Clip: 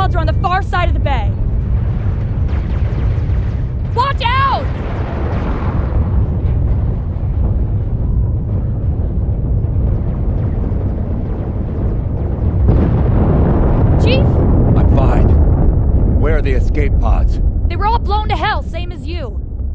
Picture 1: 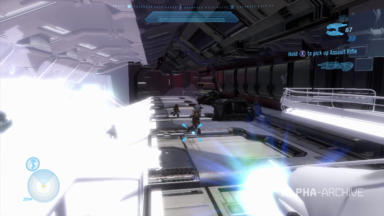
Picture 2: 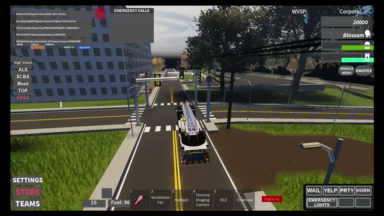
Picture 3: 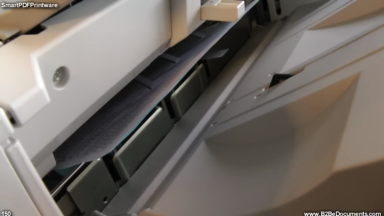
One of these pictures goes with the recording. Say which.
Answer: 1